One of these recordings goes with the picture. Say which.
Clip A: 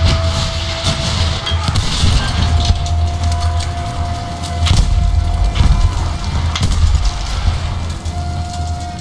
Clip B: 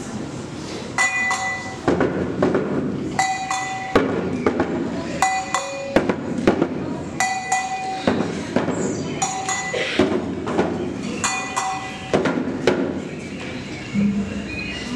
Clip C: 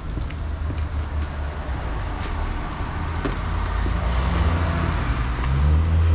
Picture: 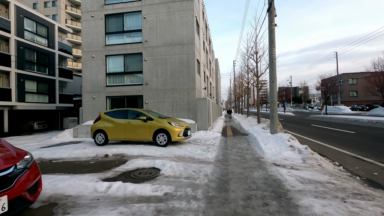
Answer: C